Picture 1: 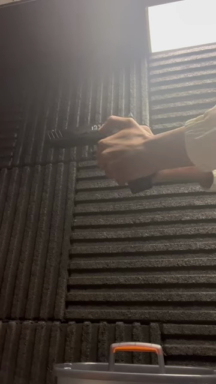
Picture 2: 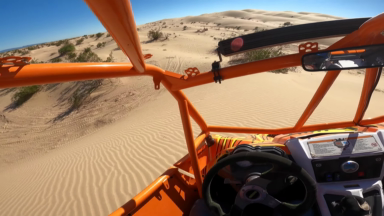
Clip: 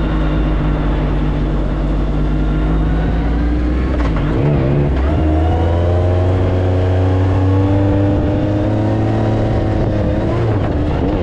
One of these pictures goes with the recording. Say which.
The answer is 2